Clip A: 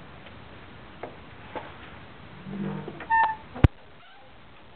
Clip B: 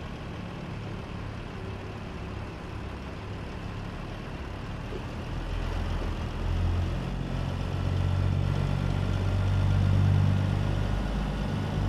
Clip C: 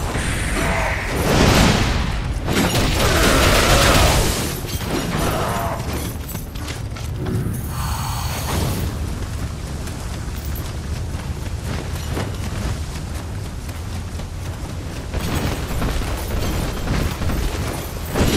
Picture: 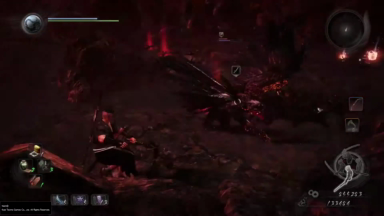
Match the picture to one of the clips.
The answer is C